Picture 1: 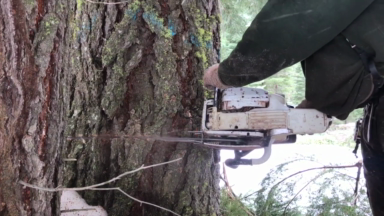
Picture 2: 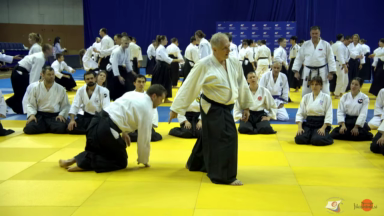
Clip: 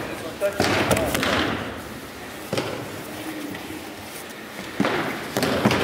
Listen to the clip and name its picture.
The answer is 2